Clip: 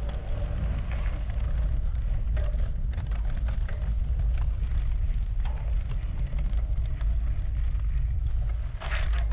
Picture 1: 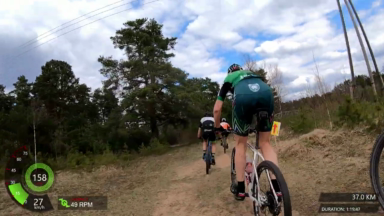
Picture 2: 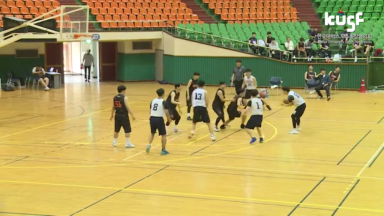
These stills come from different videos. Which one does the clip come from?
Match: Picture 1